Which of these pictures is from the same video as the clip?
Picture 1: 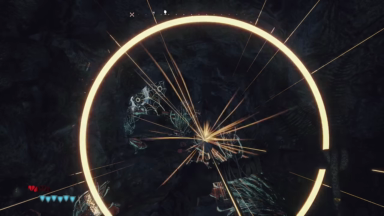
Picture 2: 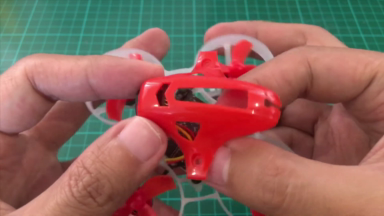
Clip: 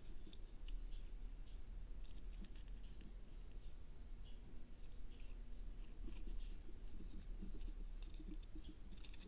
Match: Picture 2